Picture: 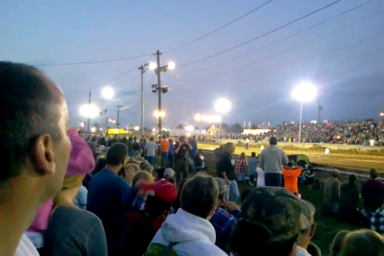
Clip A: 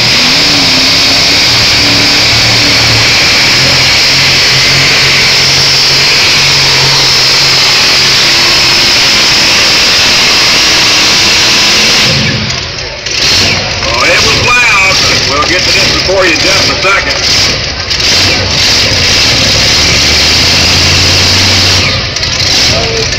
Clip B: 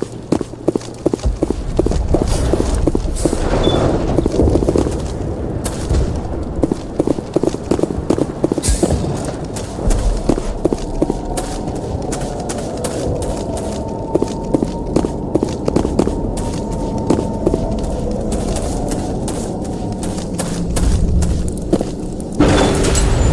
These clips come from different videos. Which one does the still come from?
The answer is A